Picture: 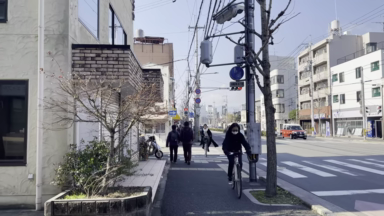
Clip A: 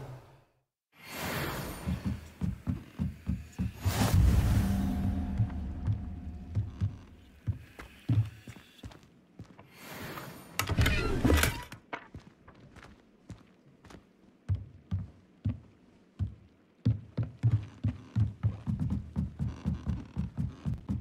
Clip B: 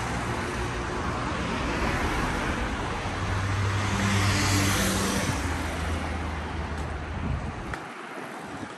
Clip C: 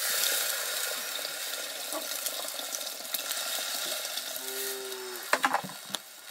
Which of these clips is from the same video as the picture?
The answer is B